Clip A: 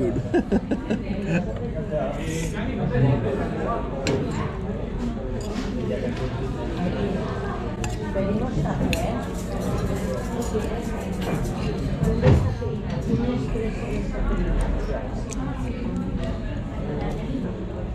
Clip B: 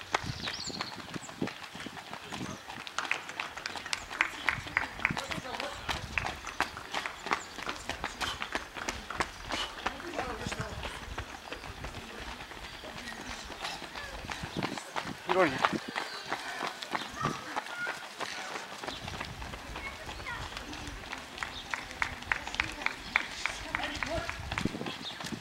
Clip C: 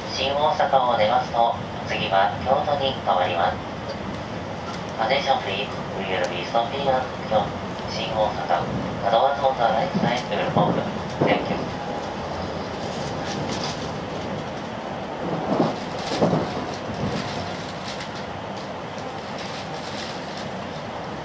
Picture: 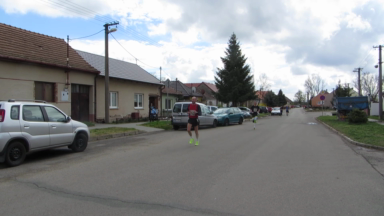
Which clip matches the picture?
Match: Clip B